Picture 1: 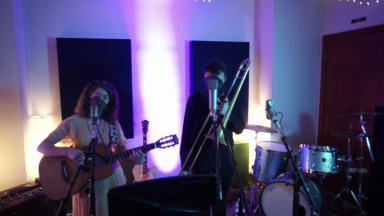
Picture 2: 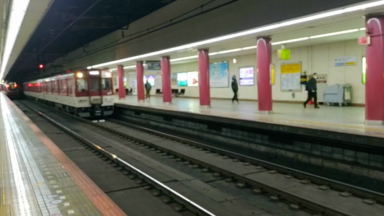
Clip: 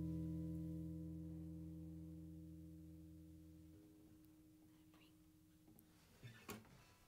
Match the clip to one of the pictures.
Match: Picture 1